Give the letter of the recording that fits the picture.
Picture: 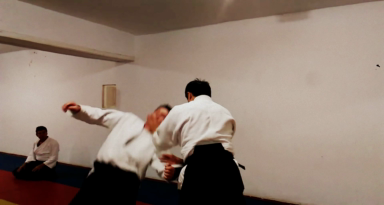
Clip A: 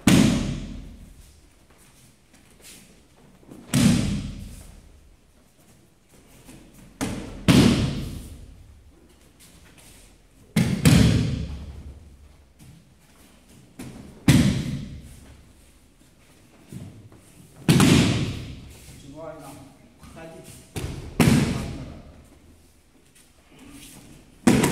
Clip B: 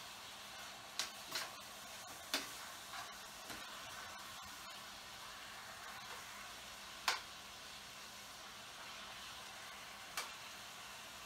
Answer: A